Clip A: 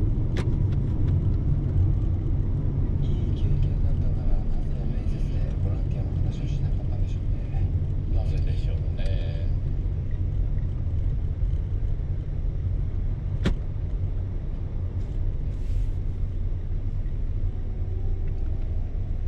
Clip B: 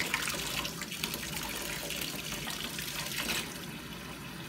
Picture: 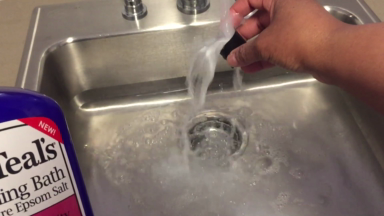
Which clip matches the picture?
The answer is B